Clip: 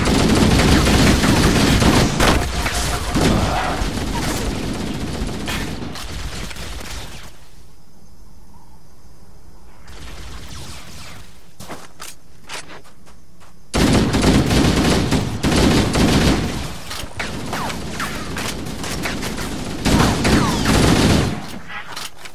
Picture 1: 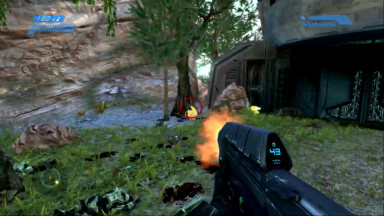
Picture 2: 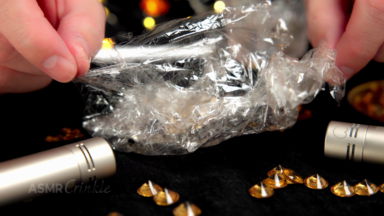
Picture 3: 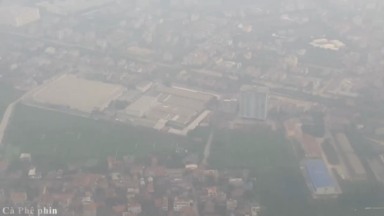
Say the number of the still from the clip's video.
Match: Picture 1